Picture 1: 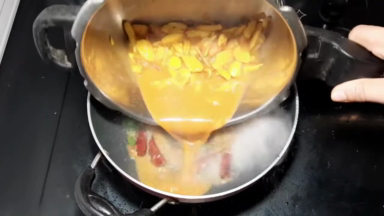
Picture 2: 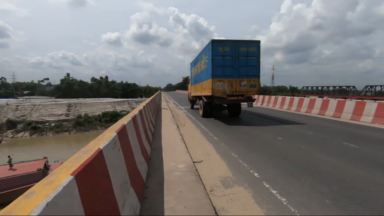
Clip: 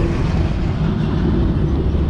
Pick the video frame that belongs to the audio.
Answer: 2